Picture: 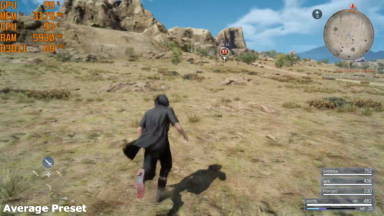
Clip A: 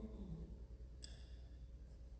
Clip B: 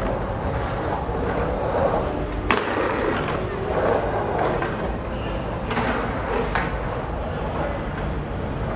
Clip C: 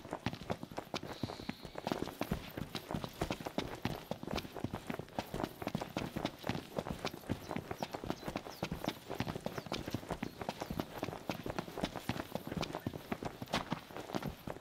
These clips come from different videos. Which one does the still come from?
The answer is C